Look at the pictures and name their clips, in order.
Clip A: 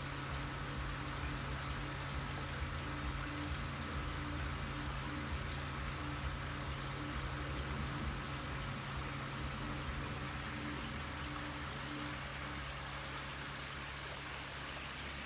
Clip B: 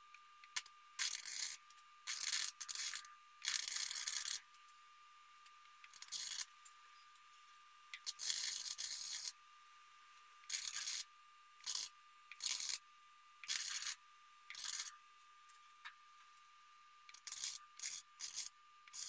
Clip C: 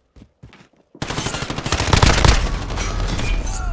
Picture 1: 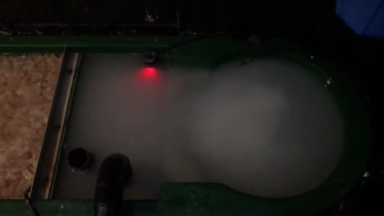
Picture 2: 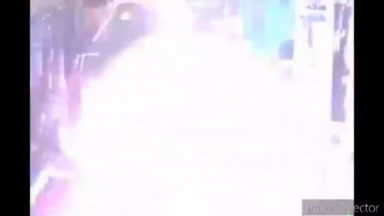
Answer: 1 A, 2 B